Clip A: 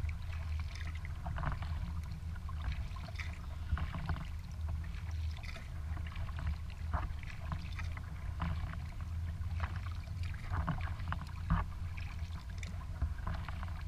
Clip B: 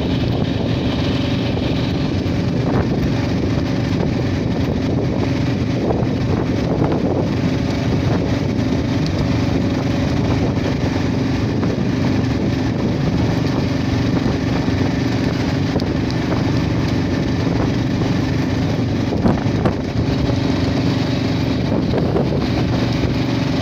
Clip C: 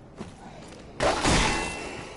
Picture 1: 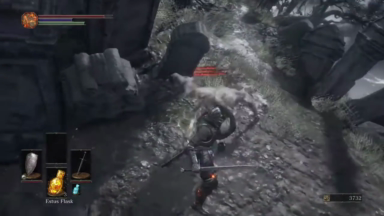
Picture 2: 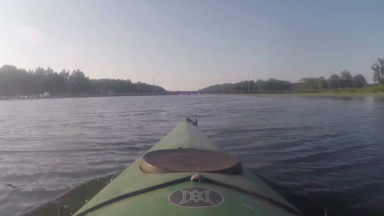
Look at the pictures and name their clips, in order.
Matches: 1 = C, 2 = A